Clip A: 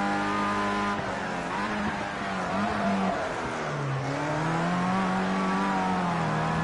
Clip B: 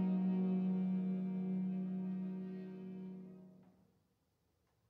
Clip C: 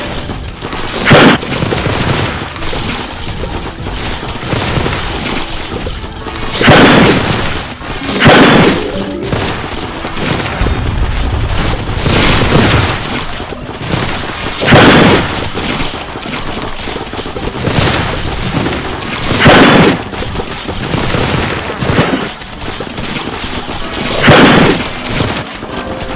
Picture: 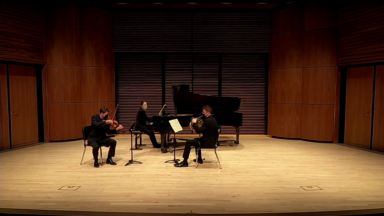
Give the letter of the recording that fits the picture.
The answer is B